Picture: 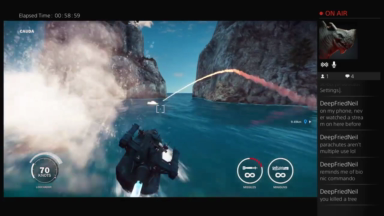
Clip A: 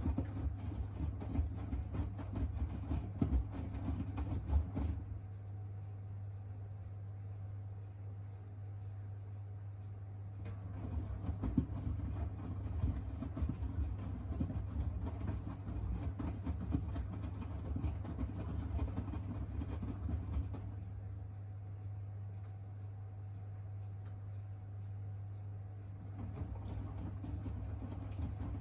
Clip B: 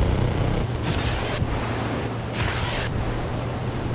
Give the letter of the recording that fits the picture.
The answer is B